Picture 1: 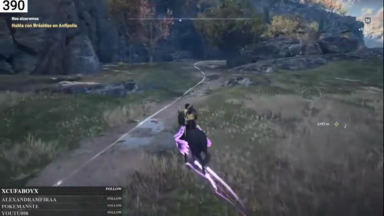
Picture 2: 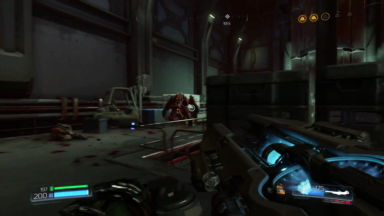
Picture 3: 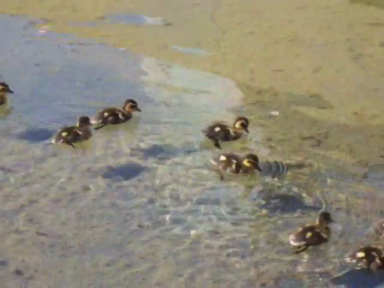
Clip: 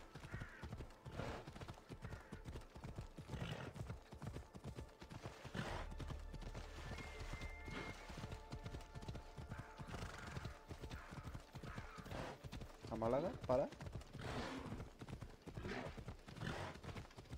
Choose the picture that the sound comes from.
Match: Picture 1